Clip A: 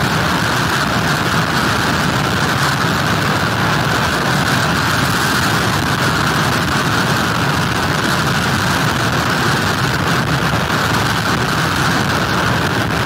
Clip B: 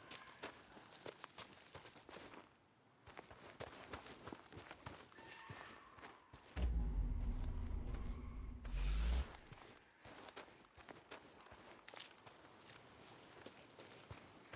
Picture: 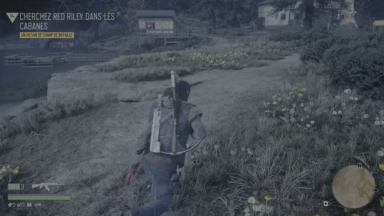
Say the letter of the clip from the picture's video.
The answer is B